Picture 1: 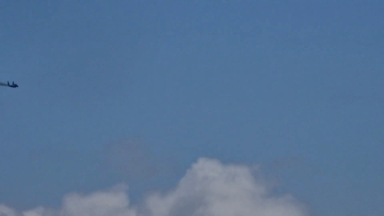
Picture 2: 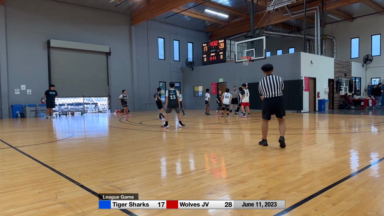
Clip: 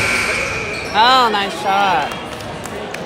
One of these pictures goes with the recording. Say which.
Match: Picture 2